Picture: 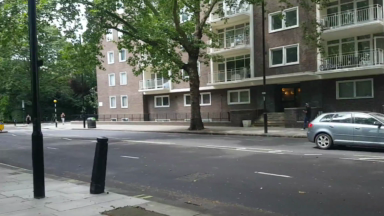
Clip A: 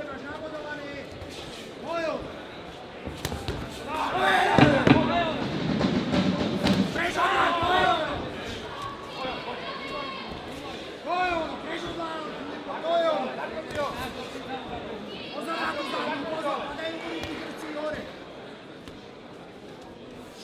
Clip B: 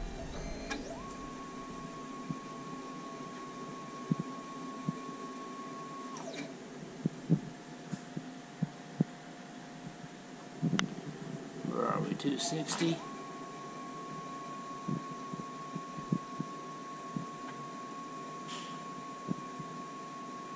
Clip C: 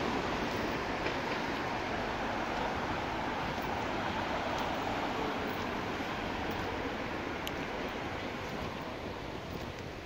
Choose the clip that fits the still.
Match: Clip C